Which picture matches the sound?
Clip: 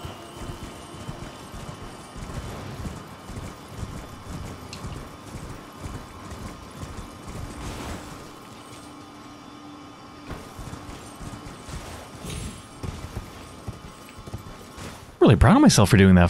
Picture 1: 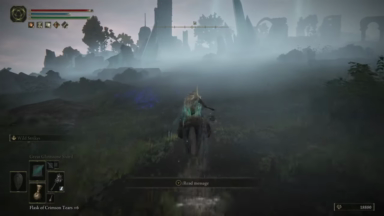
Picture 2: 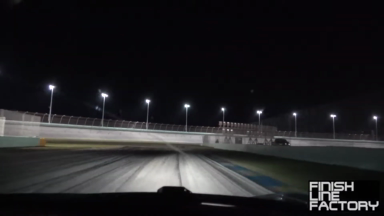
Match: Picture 1